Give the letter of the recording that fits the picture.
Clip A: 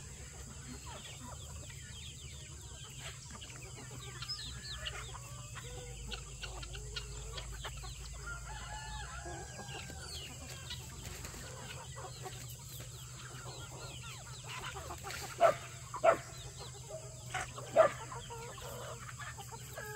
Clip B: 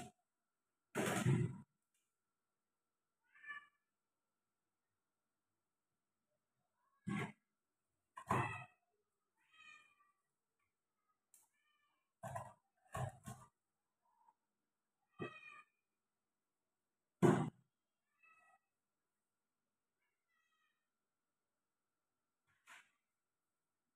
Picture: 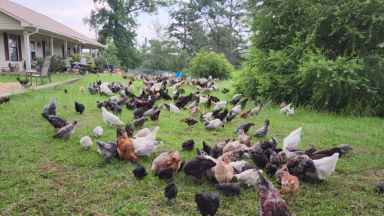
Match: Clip A